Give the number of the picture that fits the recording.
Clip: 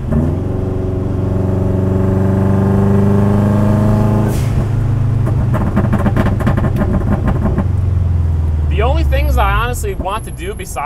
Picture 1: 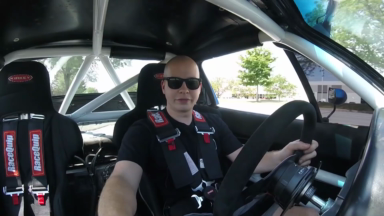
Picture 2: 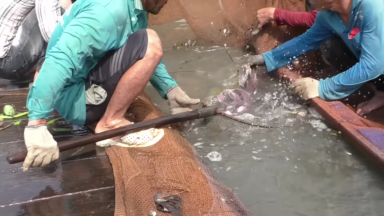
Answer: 1